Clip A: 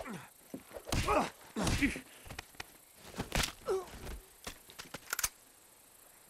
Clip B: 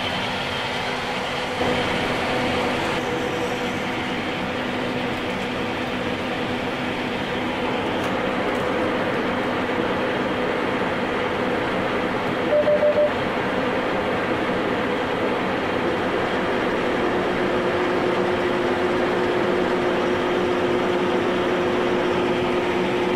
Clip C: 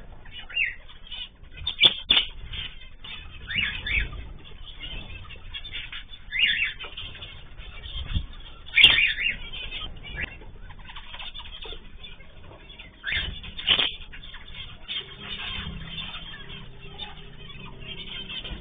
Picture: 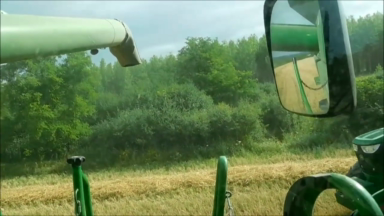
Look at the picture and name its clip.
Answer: B